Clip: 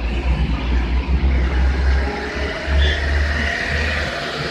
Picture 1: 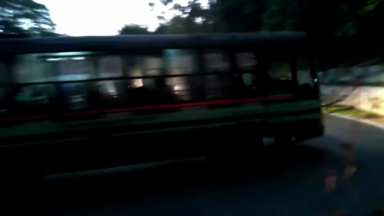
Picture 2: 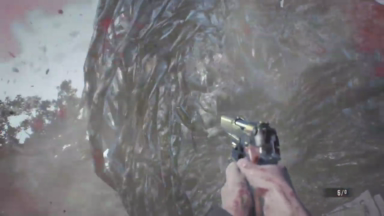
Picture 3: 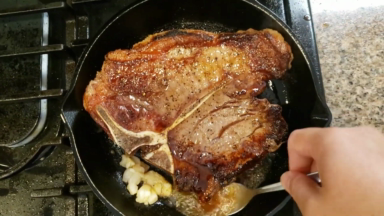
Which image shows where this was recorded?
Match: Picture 1